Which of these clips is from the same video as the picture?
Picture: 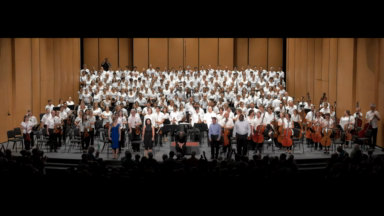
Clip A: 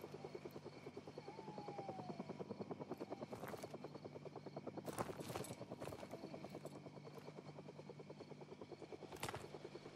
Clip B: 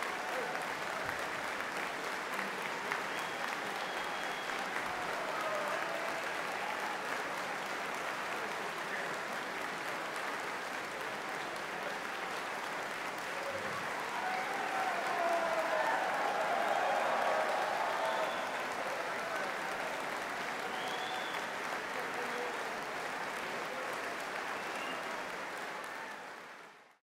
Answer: B